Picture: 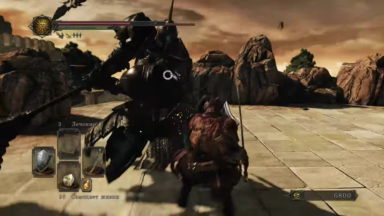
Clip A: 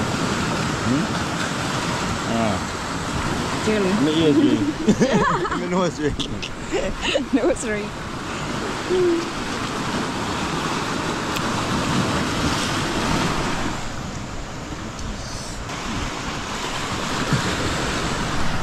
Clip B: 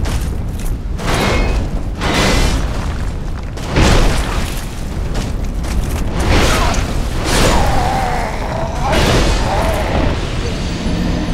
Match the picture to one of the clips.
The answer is B